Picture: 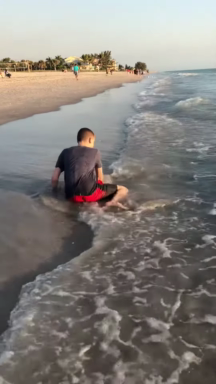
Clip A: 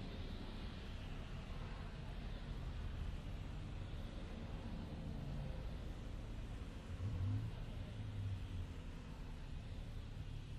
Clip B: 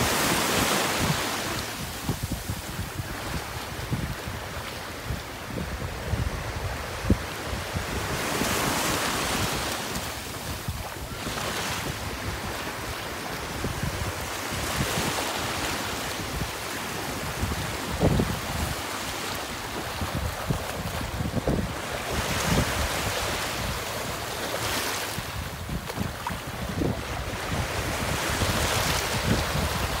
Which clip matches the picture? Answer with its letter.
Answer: B